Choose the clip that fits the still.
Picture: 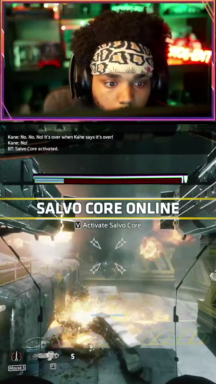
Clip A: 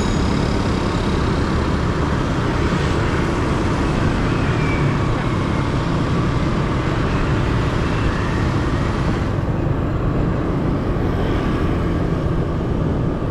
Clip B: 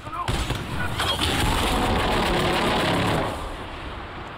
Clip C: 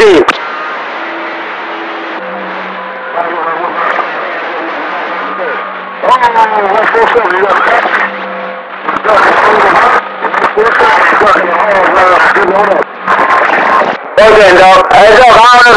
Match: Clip B